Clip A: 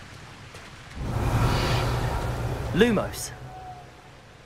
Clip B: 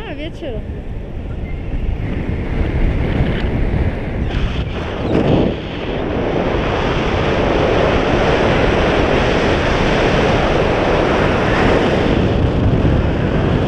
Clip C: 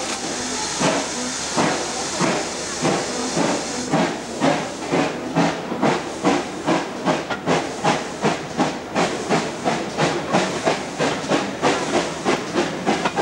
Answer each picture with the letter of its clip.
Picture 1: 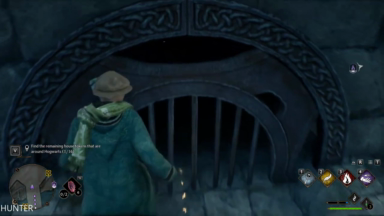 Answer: A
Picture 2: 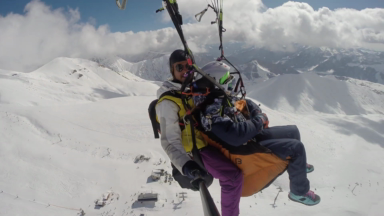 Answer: B